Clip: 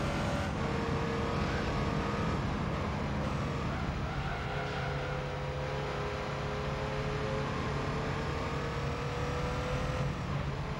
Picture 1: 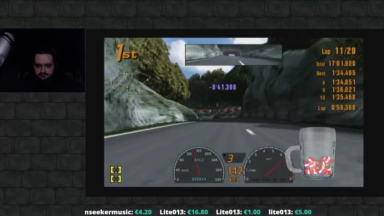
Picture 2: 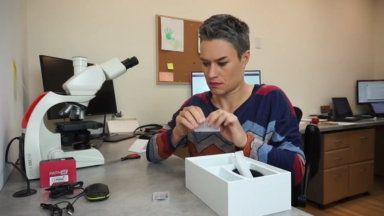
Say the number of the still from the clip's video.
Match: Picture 1